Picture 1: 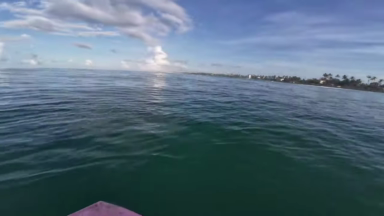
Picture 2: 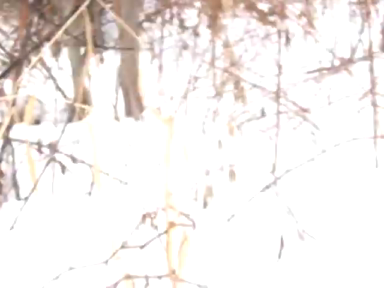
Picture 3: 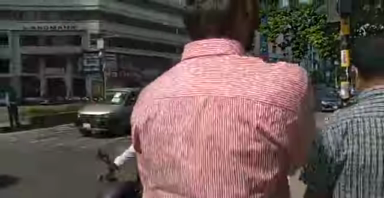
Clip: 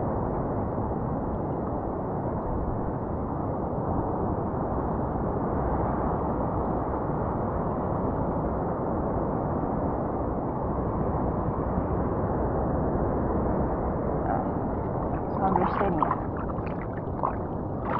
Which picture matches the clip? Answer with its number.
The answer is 1